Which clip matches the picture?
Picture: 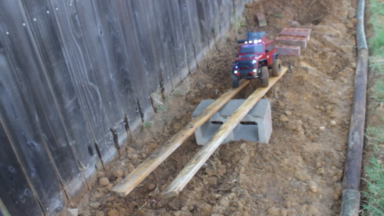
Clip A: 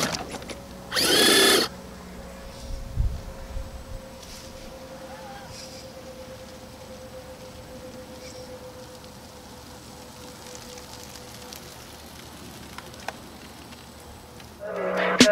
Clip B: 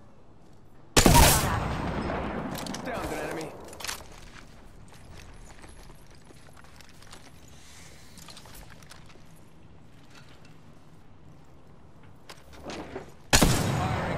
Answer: A